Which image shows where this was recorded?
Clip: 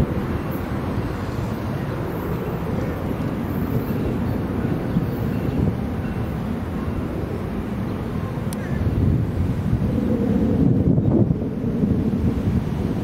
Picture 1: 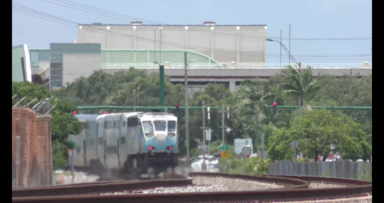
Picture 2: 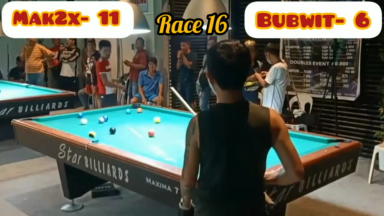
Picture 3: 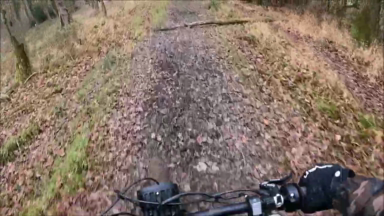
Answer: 1